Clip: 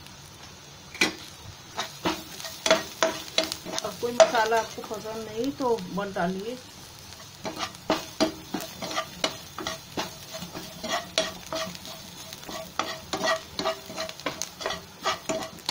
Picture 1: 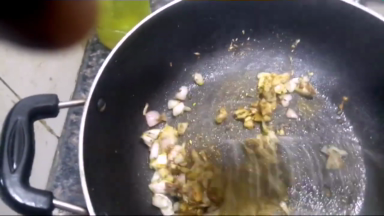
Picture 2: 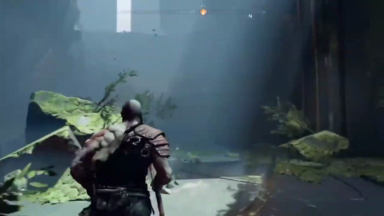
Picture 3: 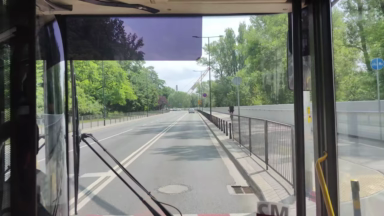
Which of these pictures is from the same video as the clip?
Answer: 1